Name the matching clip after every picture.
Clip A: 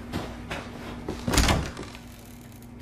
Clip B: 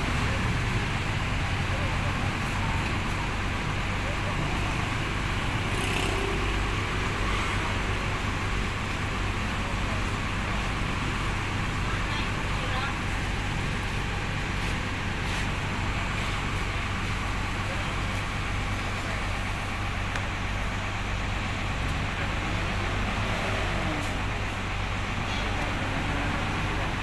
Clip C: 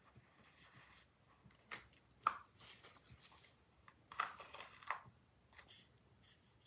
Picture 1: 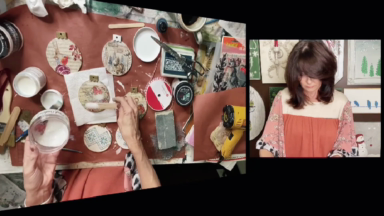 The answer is C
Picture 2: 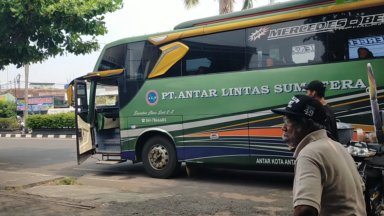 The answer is B